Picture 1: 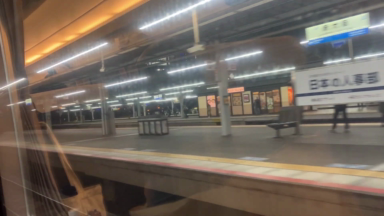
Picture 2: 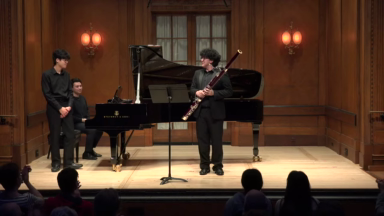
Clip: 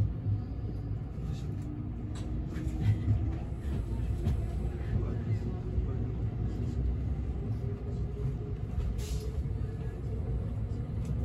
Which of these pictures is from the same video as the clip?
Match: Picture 1